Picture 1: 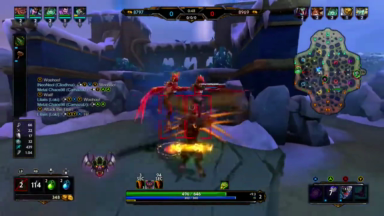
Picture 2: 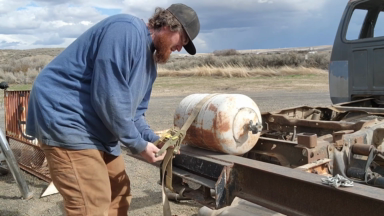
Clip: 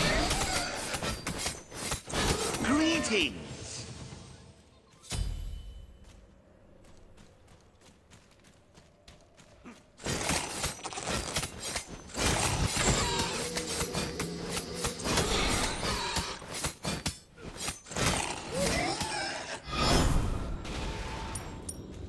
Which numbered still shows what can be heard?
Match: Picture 1